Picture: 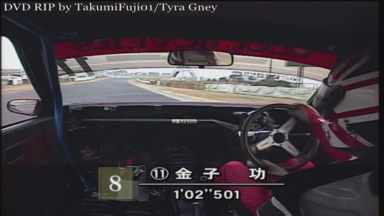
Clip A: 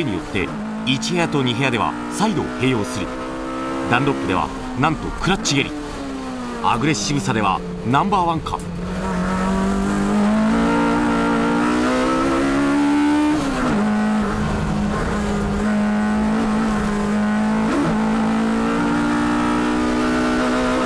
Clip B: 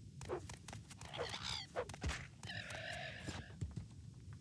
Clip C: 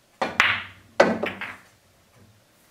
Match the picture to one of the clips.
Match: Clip A